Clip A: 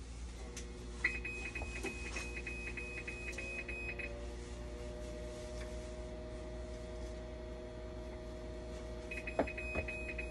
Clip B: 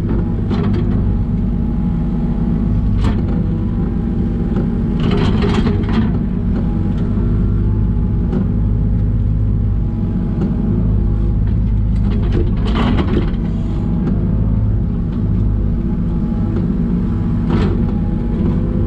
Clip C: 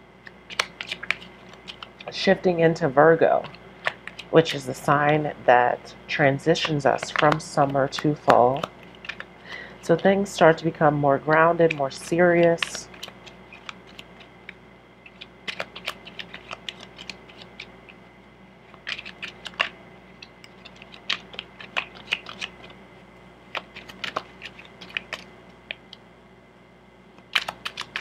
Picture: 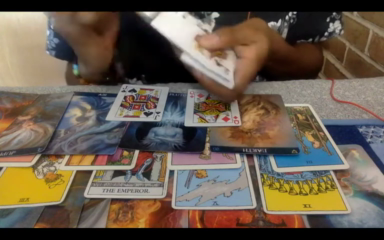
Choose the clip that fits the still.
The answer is C